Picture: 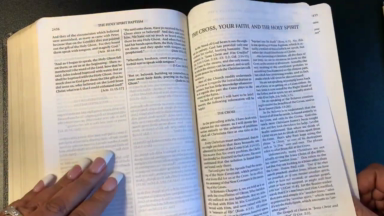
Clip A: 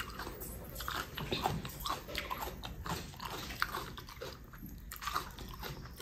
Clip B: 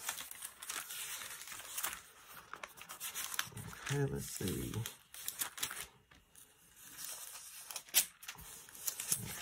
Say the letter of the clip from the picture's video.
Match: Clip B